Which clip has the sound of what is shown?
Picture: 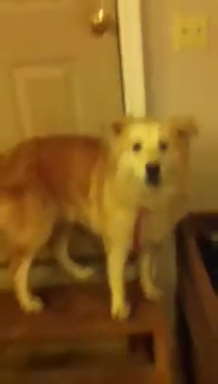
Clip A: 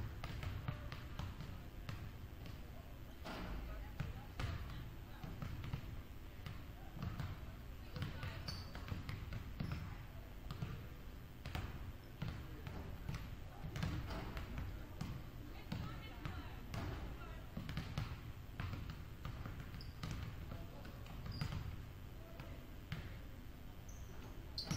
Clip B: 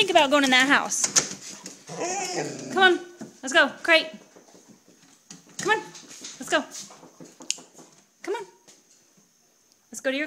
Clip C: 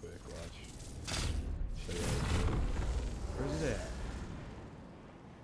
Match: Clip B